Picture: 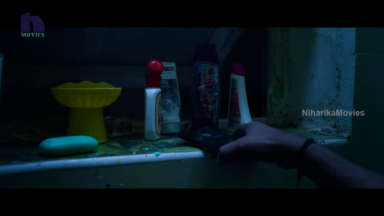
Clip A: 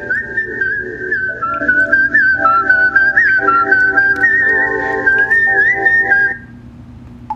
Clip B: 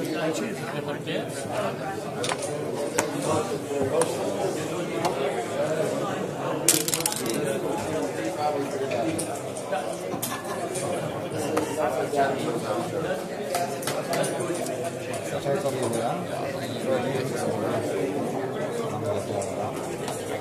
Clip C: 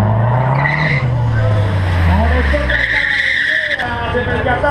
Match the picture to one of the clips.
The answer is A